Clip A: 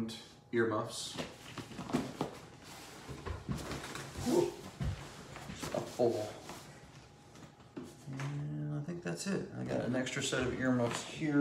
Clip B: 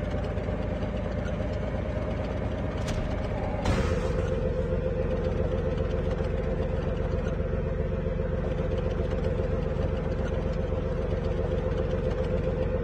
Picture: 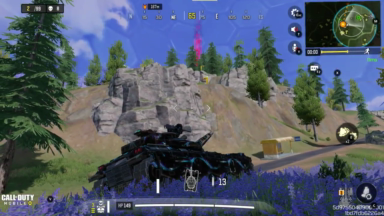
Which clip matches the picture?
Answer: B